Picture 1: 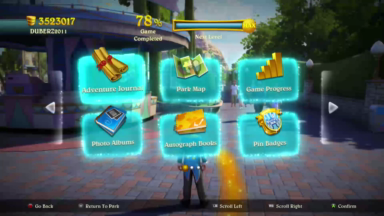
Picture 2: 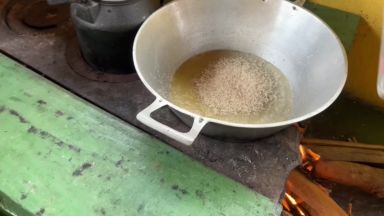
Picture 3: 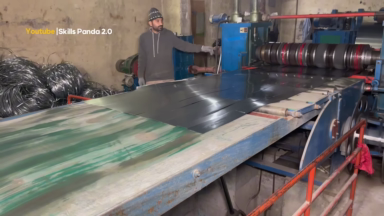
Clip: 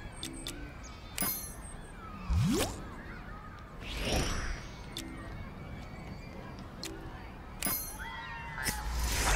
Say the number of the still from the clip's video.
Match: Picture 1